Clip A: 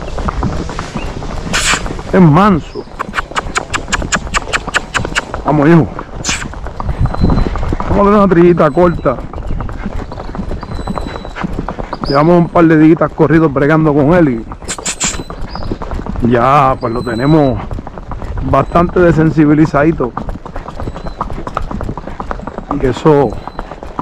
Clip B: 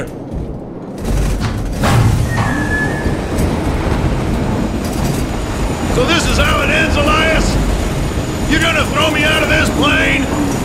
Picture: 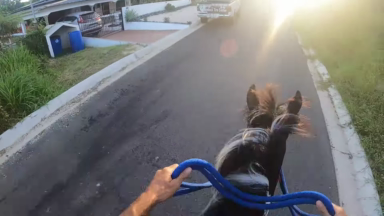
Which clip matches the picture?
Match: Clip A